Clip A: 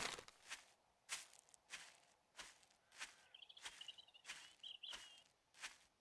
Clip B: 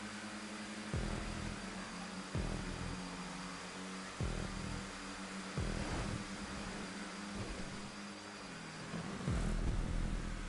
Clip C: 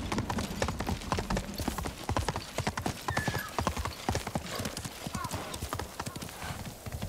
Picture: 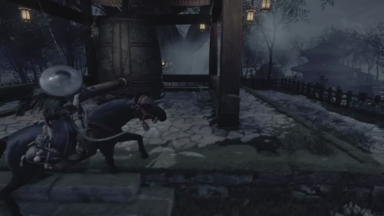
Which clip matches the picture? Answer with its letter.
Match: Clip C